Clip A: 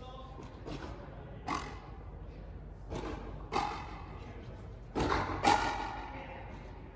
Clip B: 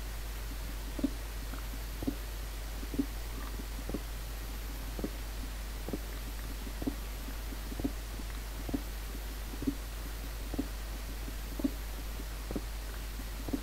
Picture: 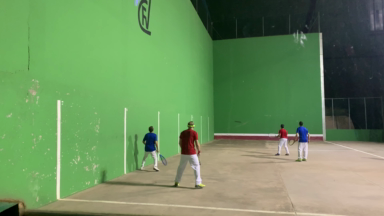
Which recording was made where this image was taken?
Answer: A